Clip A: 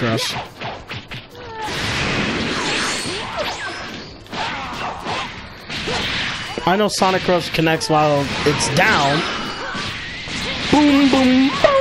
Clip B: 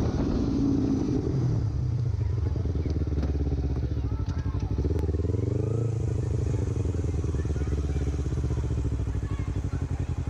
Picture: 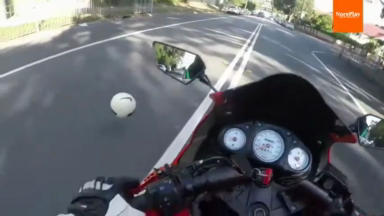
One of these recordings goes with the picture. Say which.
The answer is B